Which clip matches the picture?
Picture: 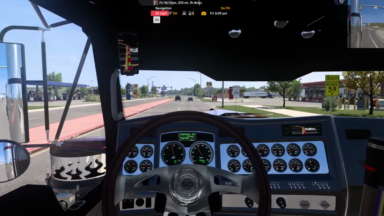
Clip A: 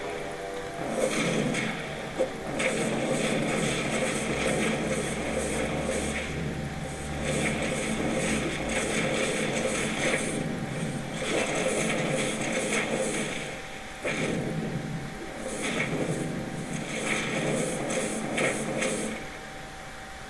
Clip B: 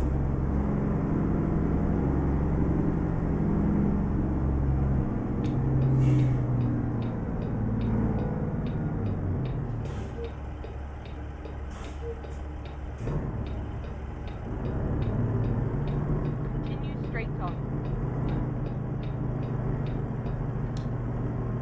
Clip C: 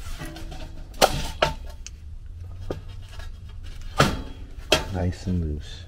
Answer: B